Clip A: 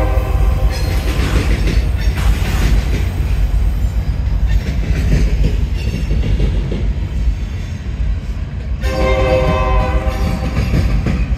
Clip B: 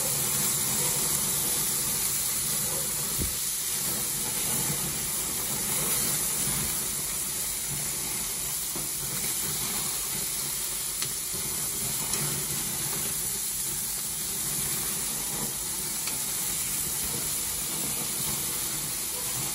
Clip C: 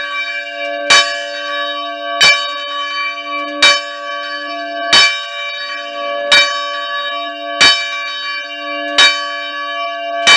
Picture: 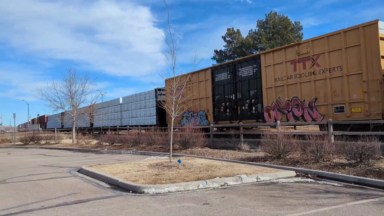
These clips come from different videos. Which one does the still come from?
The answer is A